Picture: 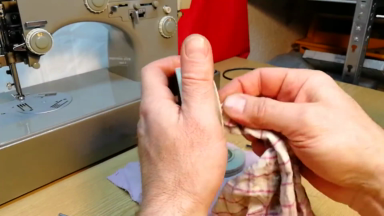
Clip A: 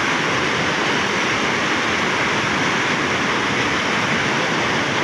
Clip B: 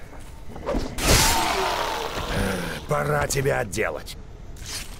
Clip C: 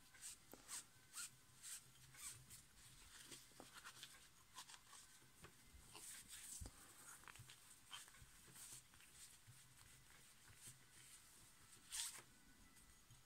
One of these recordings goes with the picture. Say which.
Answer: C